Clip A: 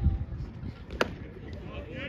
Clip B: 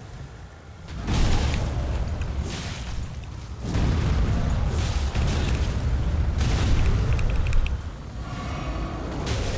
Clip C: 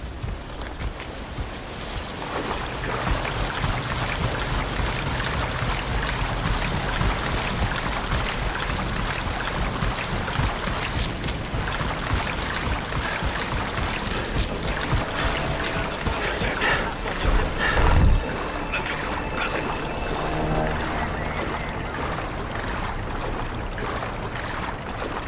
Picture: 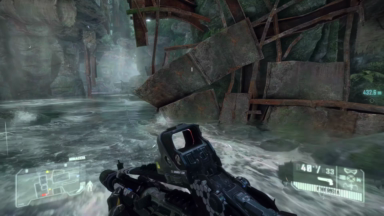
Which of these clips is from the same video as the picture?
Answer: C